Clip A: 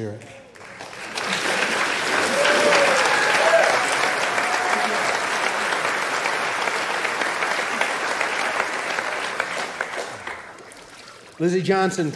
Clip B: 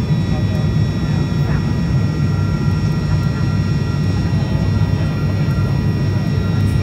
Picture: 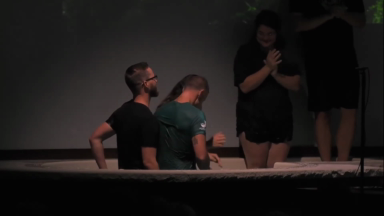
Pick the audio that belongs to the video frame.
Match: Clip A